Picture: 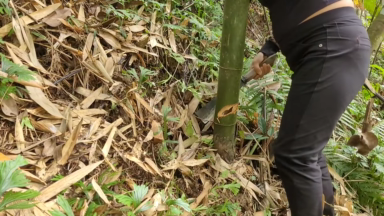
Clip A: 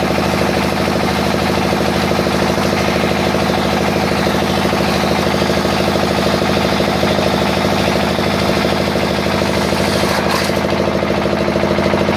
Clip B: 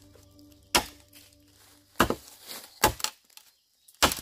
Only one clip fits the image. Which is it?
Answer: B